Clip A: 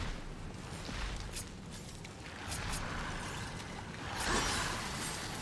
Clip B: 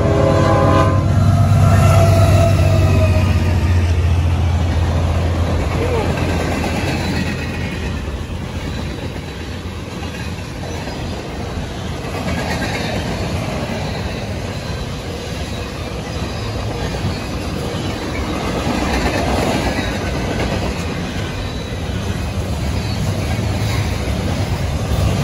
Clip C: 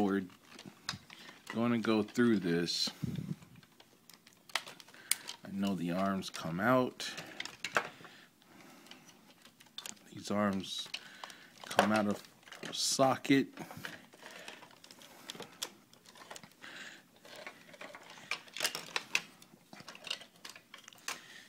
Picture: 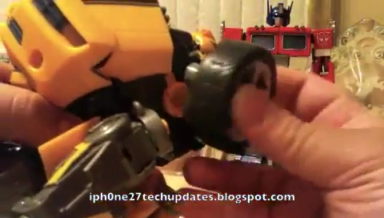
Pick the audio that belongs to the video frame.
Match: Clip C